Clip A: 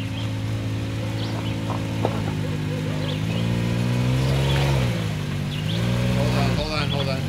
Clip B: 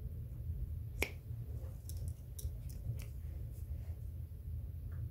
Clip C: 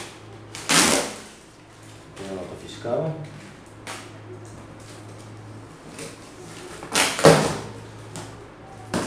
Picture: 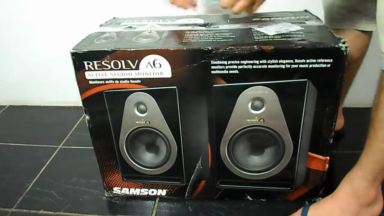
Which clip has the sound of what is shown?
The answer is C